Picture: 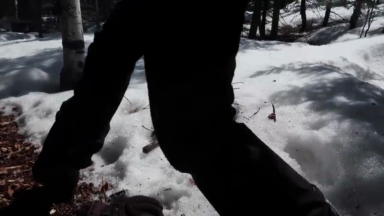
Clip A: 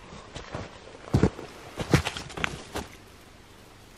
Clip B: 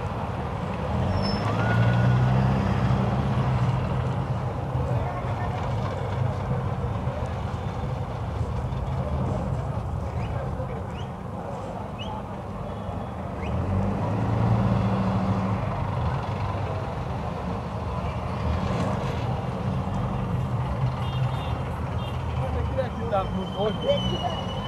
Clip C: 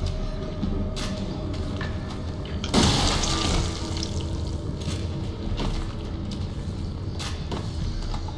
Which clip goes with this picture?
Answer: A